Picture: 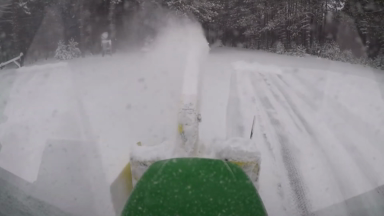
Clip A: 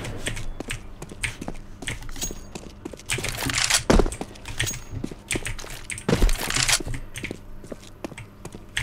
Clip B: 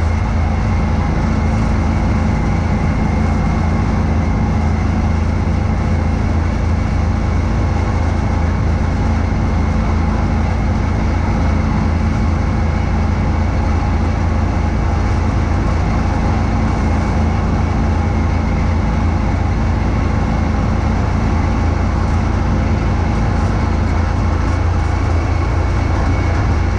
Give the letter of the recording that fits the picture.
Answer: B